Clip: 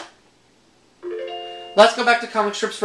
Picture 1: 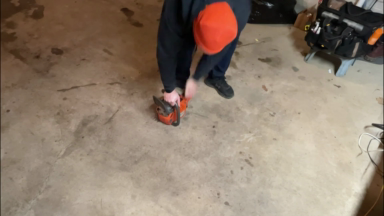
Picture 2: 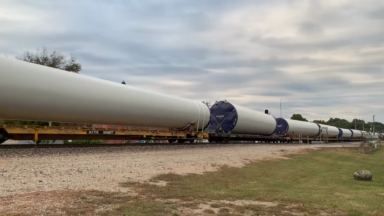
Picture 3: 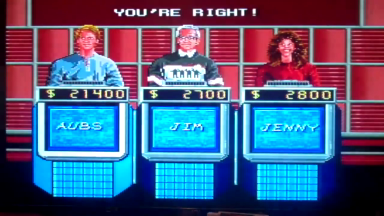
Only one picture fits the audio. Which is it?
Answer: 3